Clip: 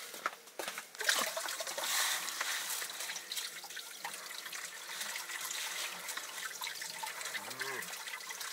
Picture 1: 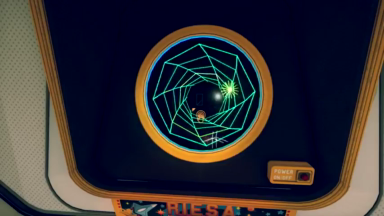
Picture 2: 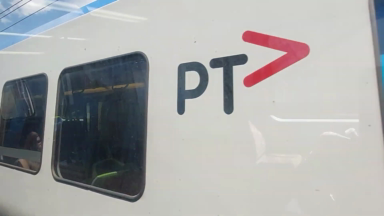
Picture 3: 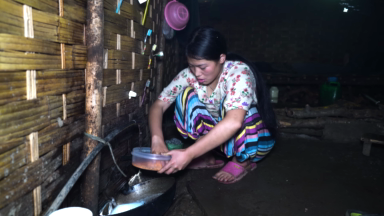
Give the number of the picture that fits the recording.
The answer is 3